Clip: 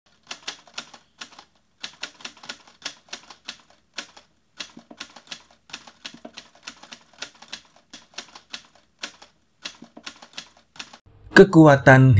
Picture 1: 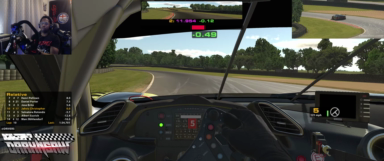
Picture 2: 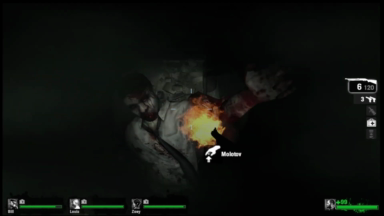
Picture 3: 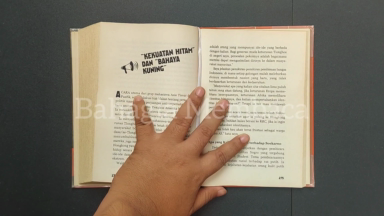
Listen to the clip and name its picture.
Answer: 3